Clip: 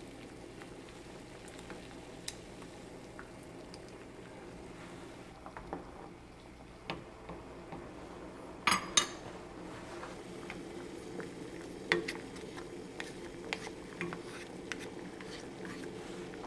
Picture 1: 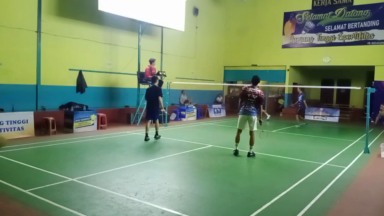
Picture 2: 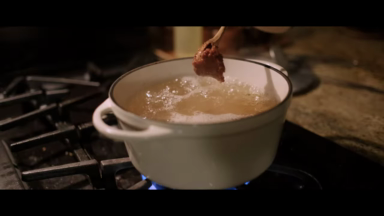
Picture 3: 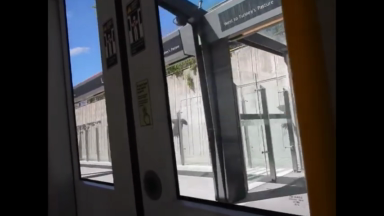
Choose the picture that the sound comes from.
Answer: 2